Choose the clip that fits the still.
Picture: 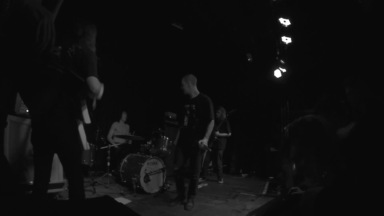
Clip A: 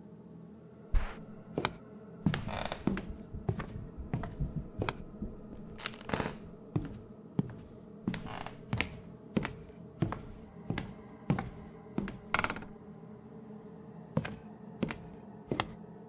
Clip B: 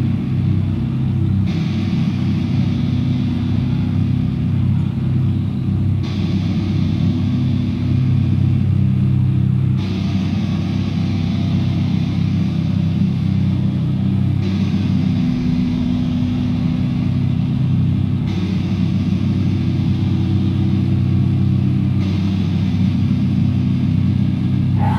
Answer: B